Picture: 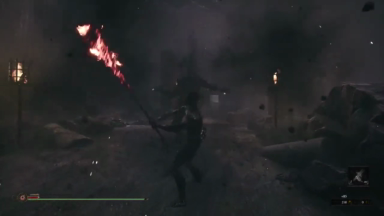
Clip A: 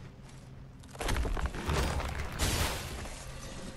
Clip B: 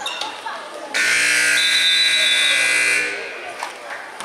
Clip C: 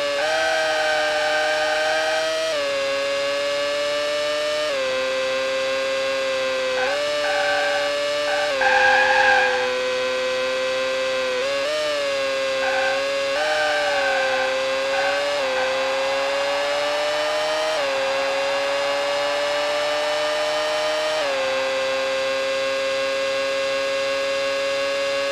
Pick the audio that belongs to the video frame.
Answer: A